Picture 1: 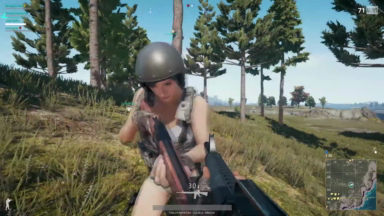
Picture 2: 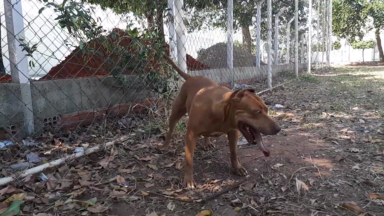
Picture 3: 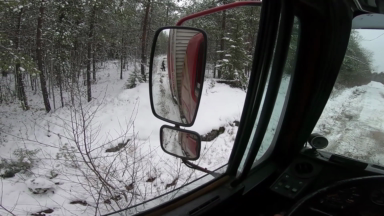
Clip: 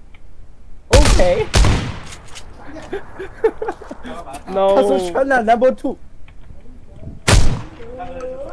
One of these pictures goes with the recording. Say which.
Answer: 1